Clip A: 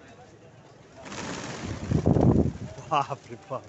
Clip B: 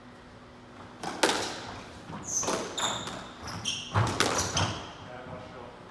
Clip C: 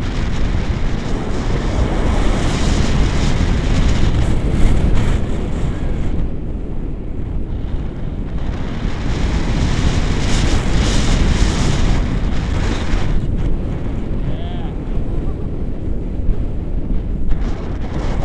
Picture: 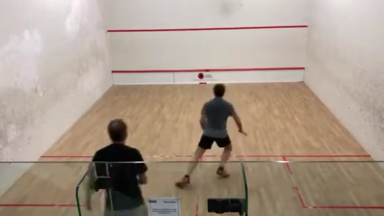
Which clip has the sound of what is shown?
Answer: B